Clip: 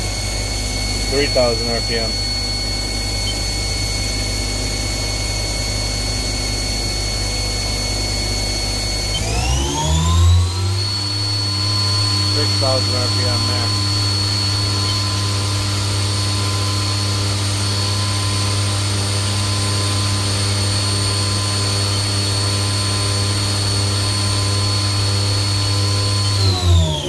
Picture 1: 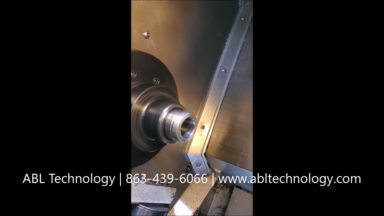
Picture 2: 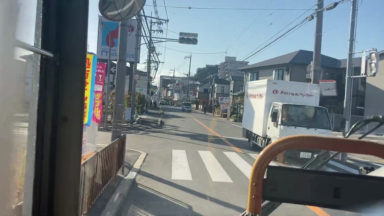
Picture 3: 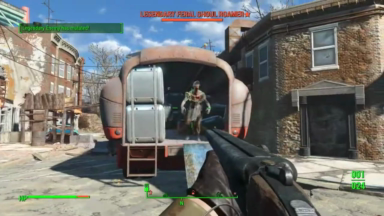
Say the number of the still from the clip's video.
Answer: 1